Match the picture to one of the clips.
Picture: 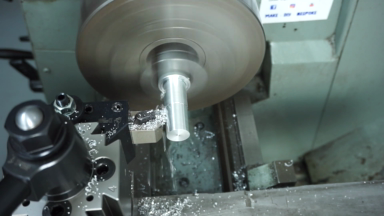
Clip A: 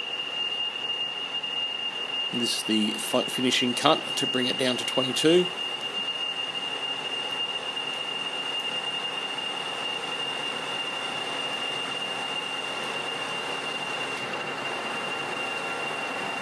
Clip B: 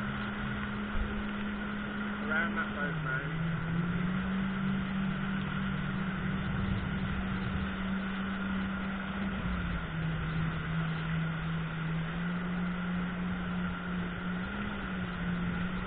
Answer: A